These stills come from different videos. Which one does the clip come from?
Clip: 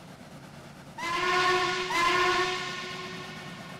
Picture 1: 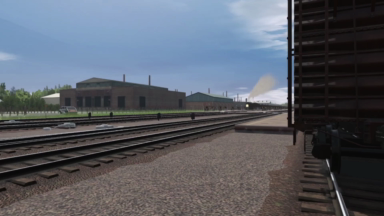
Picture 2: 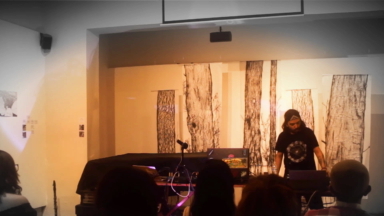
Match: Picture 1